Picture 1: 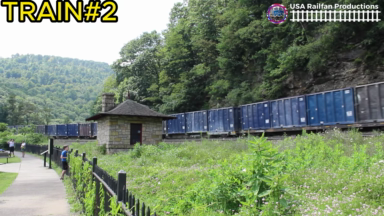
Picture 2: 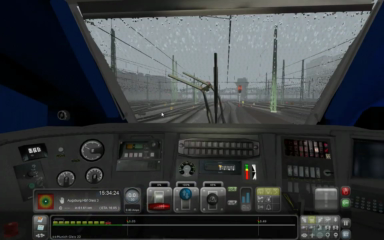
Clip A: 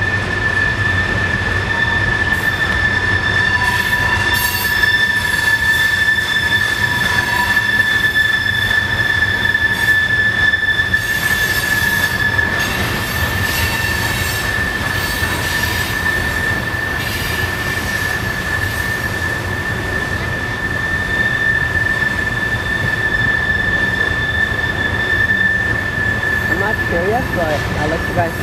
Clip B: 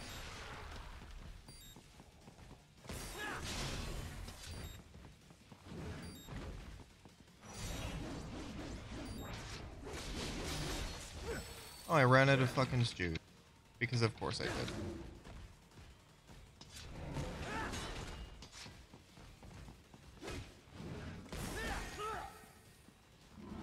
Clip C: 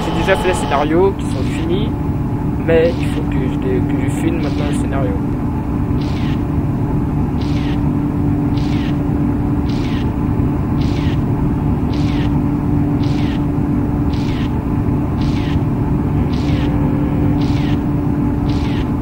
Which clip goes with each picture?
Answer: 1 A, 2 C